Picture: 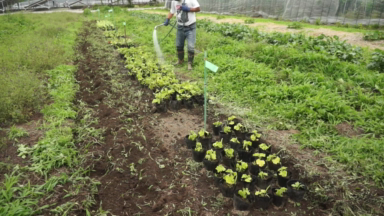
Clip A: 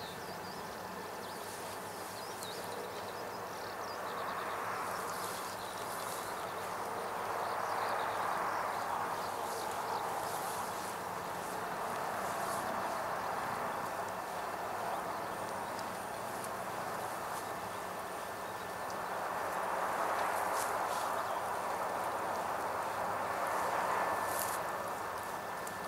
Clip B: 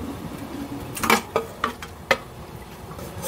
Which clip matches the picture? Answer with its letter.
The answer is A